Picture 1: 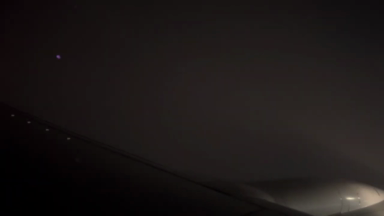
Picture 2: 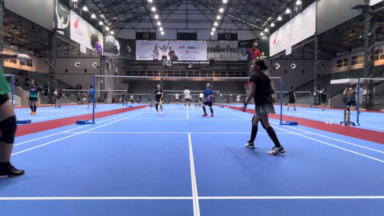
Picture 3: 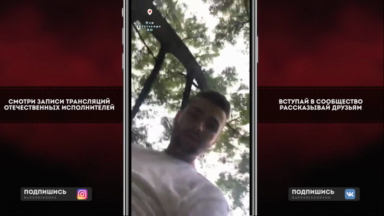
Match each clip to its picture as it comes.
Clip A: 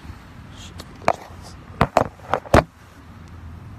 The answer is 3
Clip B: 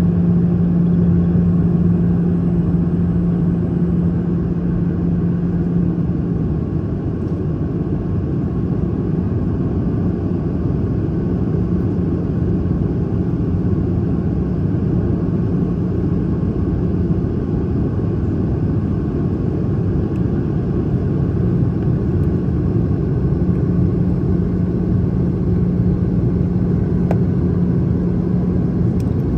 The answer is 1